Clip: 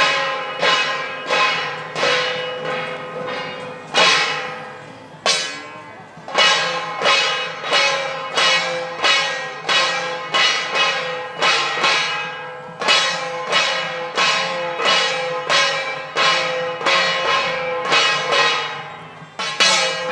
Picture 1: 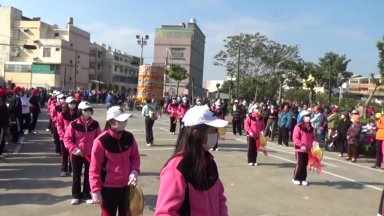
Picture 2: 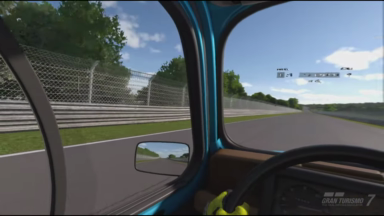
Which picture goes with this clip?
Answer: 1